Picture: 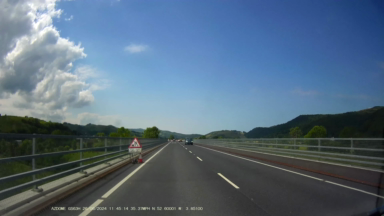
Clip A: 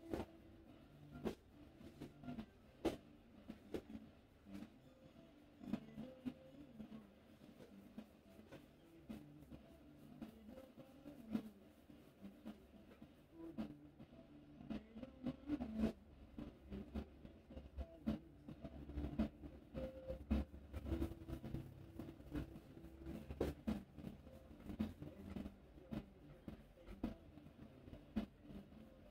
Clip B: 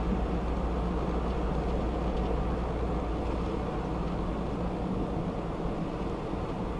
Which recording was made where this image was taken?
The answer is B